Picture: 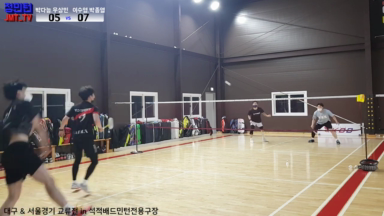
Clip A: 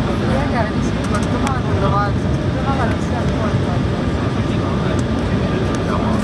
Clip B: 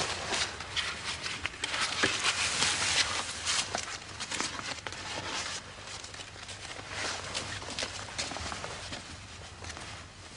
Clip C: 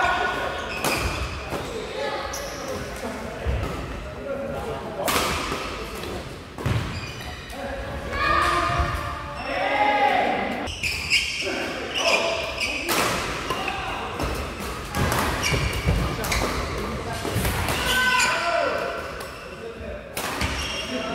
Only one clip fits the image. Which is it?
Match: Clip C